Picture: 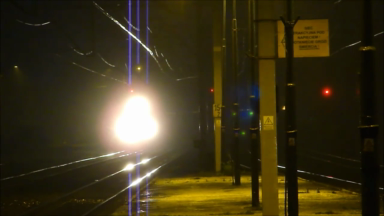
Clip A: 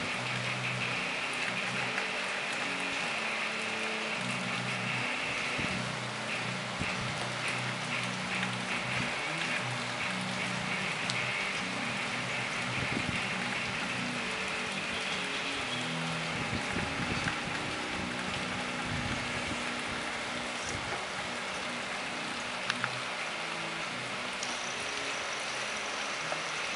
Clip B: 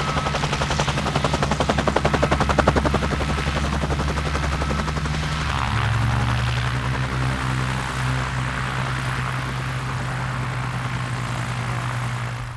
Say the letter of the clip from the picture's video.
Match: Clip A